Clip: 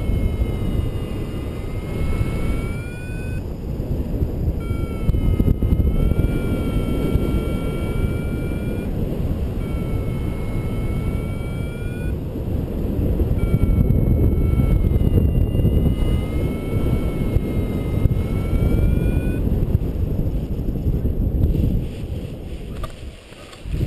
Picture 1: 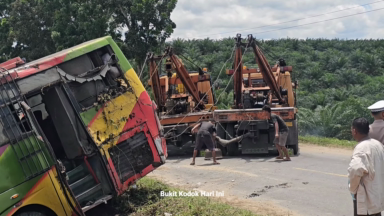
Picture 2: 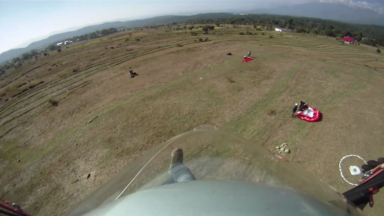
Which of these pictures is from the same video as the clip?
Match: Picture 2